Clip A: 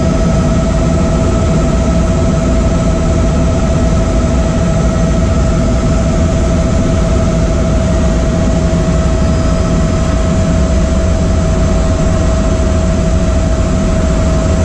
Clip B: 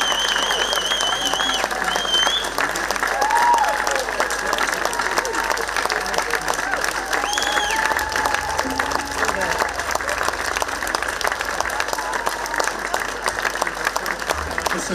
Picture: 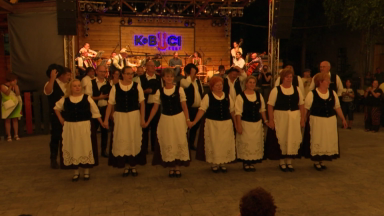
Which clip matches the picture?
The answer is B